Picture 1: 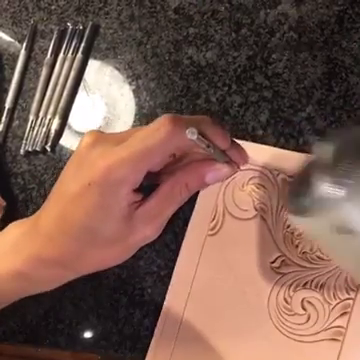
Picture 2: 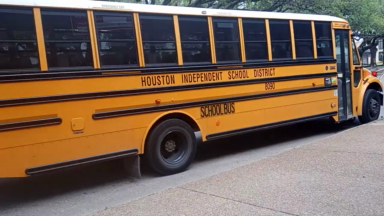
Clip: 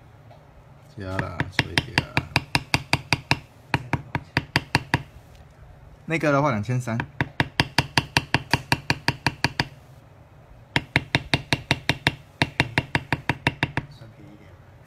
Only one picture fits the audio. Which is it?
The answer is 1